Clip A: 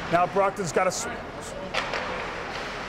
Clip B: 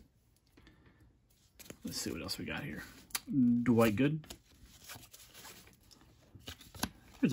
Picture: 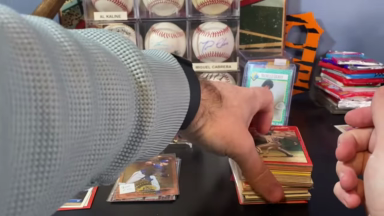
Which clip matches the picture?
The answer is B